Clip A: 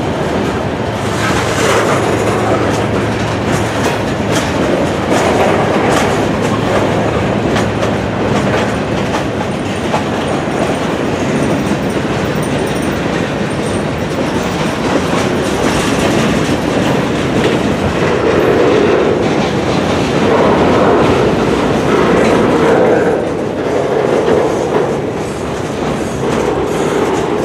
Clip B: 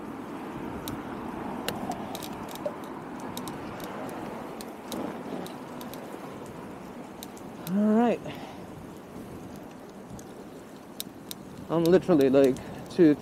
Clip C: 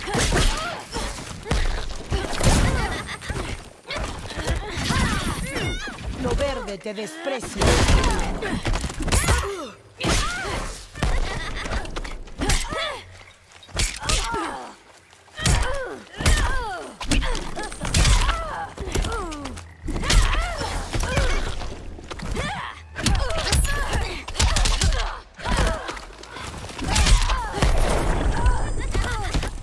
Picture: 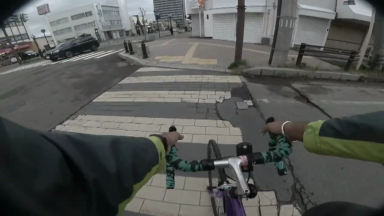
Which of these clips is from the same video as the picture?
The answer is B